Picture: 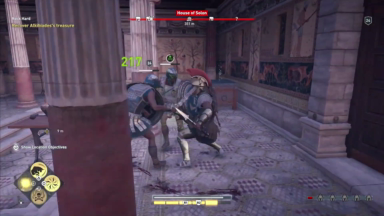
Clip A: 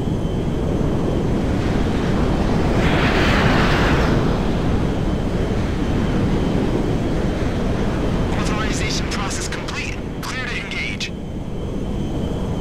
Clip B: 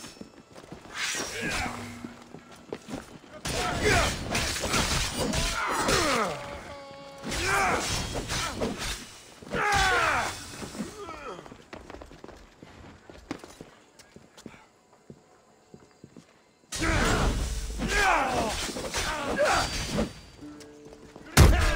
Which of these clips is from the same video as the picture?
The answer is B